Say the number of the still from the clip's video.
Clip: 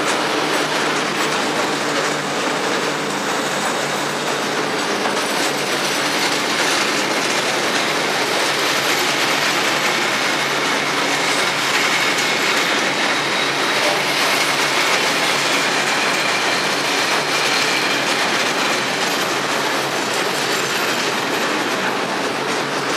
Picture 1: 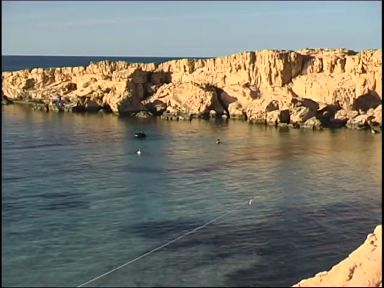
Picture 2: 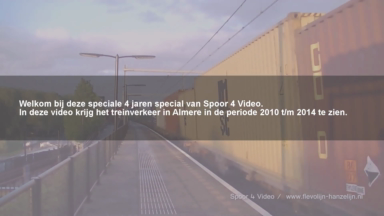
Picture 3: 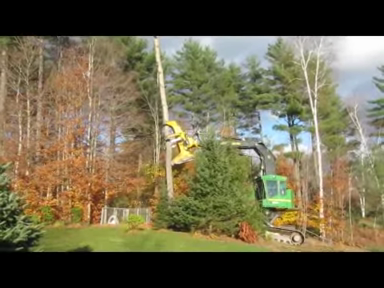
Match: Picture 2